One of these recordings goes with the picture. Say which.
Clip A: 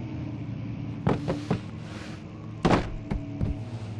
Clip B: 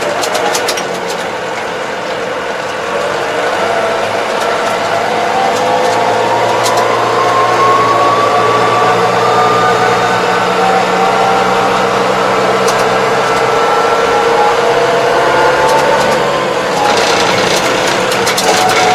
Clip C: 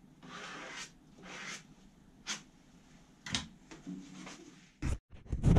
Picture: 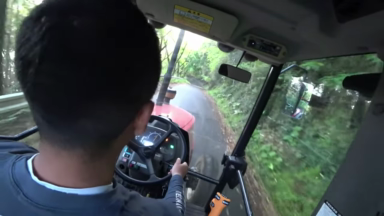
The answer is B